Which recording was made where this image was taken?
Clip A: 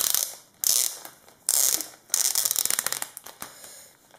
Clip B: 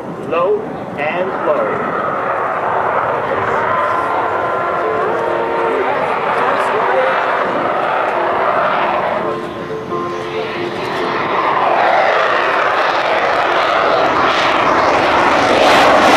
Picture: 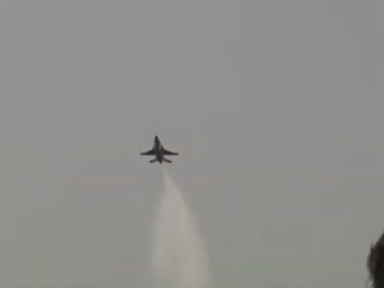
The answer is B